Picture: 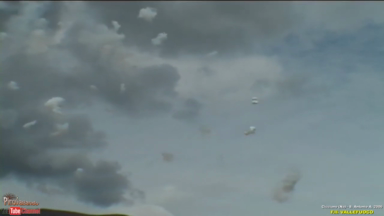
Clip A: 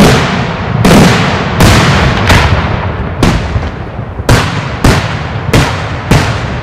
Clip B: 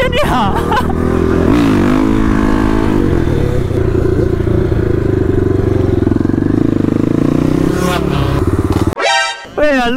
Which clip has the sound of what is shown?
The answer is A